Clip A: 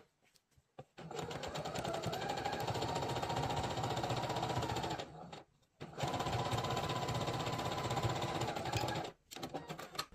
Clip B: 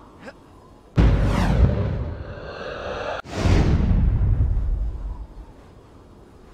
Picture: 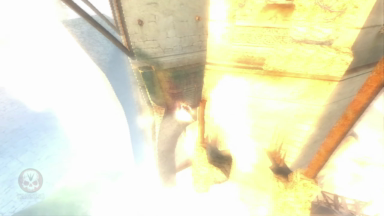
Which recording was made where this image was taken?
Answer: B